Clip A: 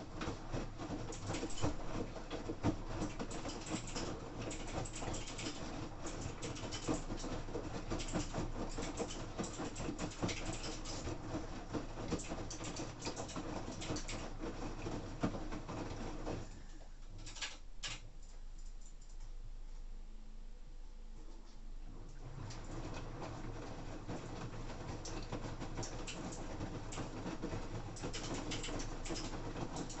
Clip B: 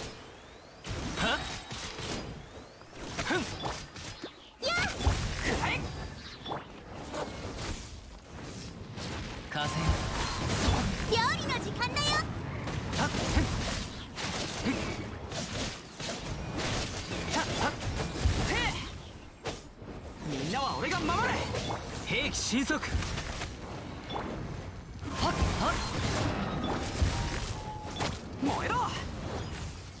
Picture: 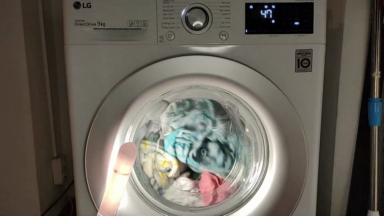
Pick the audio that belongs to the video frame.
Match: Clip A